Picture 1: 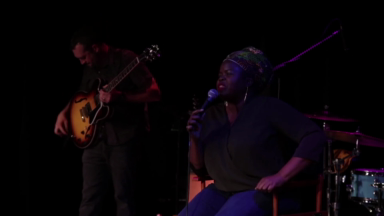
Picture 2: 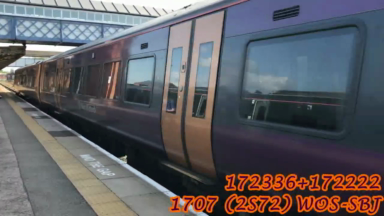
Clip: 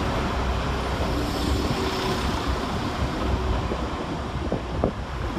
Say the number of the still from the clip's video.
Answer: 2